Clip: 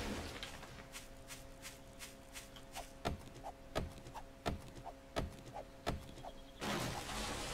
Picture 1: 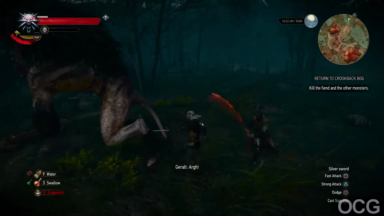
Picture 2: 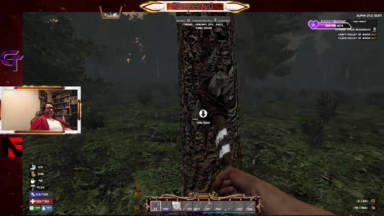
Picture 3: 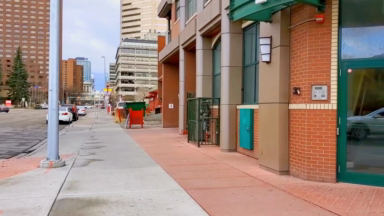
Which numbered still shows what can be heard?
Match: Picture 2